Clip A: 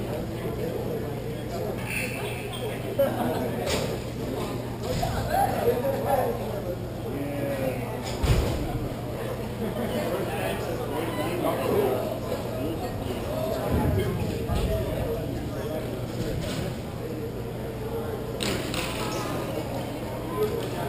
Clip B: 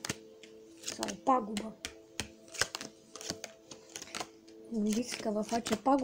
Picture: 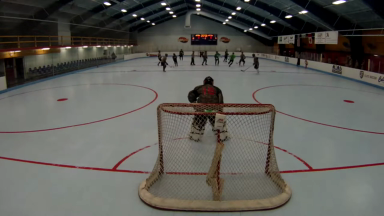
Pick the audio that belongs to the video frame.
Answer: A